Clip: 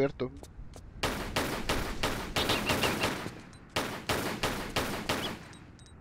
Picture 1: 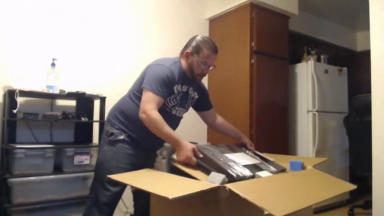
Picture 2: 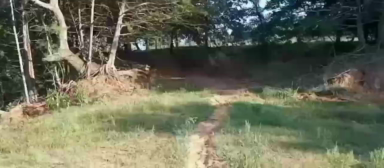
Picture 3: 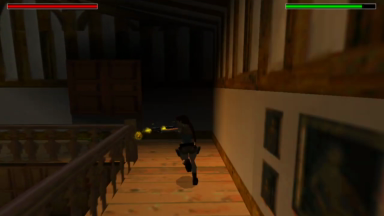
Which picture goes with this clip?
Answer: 3